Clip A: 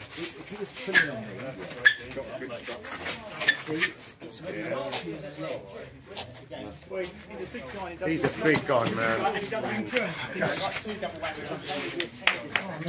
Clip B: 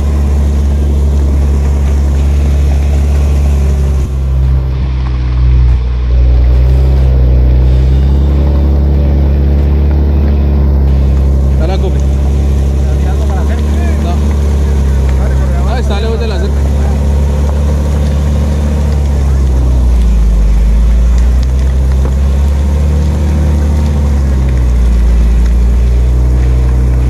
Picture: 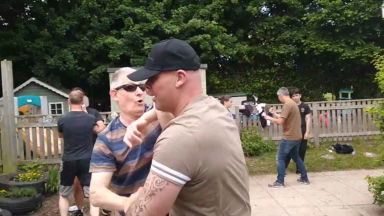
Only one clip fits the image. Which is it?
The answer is A